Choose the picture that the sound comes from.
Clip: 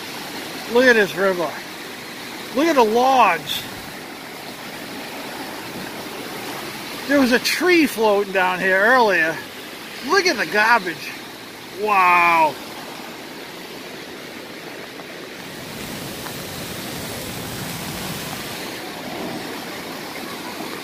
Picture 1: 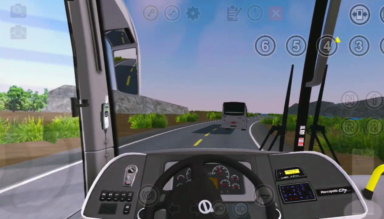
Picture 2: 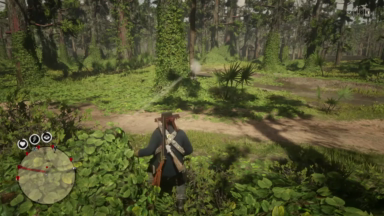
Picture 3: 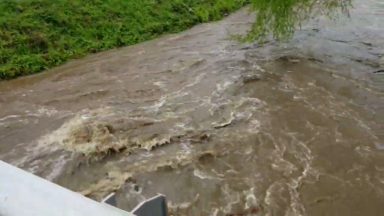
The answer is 3